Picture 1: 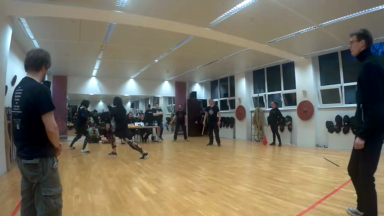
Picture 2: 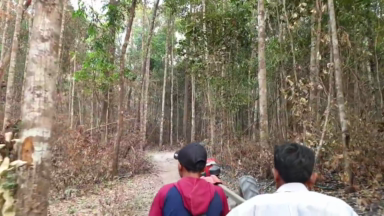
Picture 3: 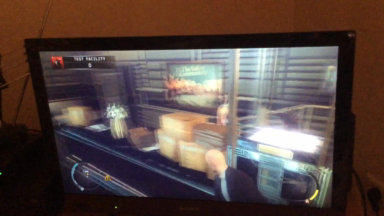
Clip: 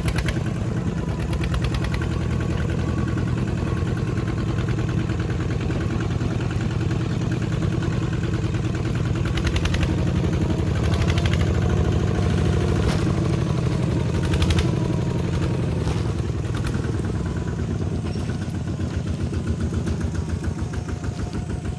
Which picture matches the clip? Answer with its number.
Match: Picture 2